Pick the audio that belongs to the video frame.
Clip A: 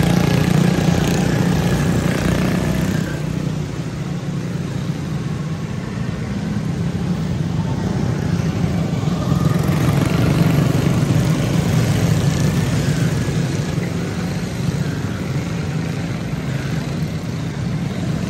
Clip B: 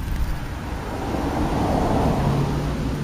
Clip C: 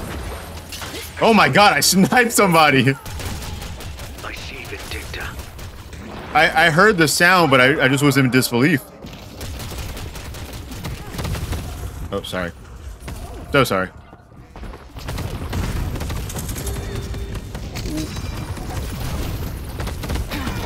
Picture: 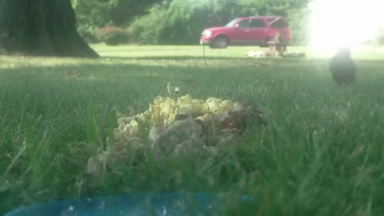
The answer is B